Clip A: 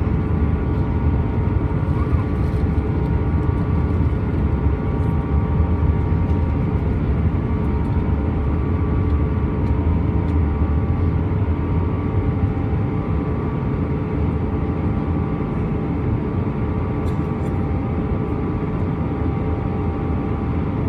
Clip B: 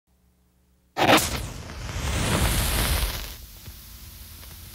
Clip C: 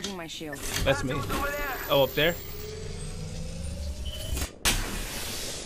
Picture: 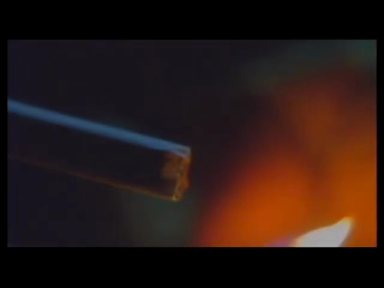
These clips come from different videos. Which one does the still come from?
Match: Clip B